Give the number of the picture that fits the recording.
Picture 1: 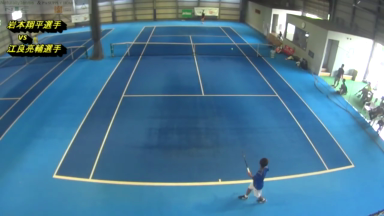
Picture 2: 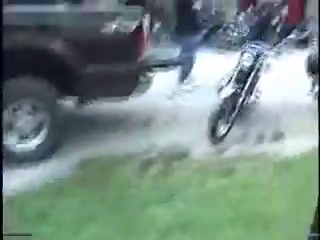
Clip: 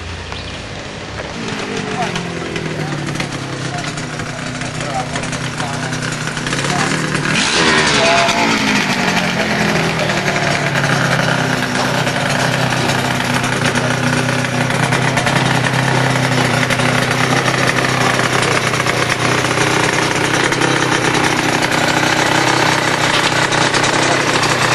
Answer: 2